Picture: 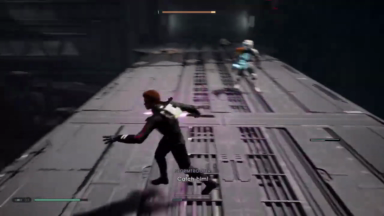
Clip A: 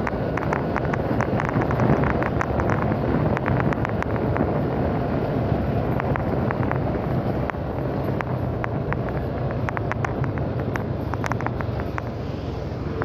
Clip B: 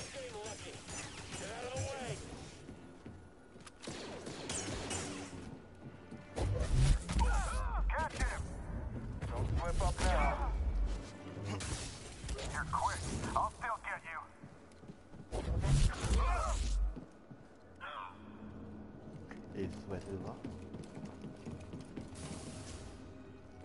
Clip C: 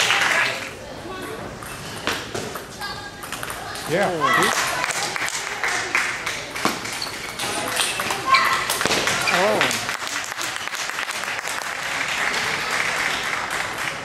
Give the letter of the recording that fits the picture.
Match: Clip B